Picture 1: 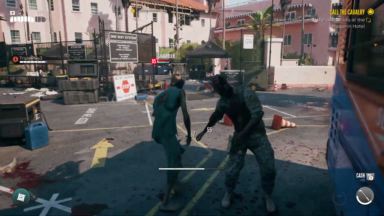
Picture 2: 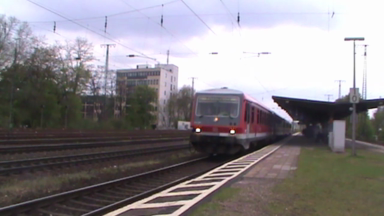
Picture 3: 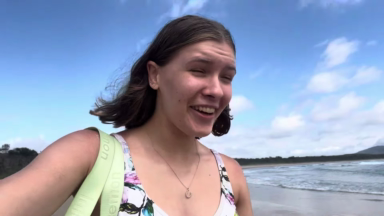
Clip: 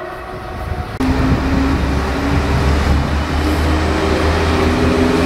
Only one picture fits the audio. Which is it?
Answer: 2